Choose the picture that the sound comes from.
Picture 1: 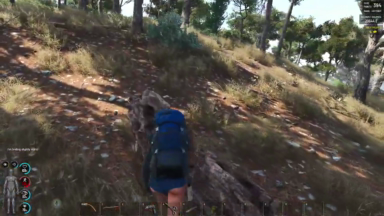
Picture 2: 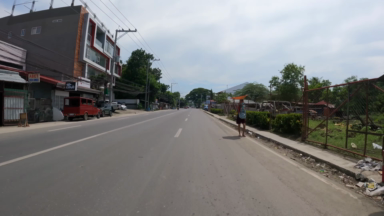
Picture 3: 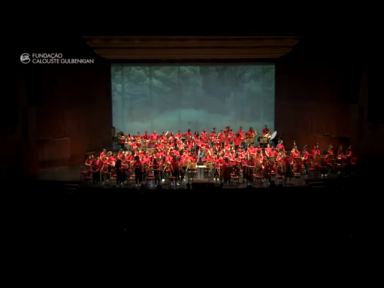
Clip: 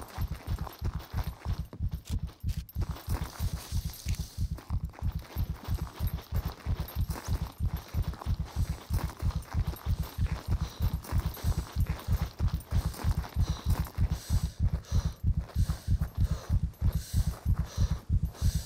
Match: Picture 1